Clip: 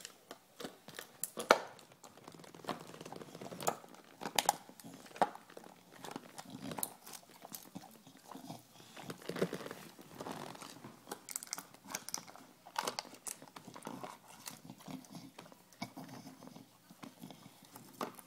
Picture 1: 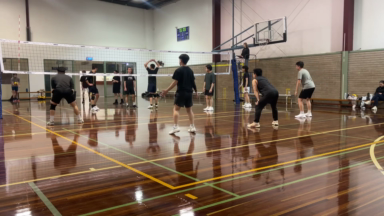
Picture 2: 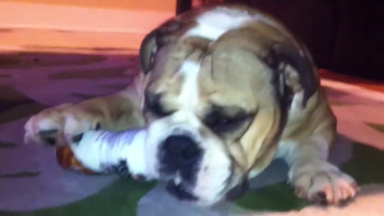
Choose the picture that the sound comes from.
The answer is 2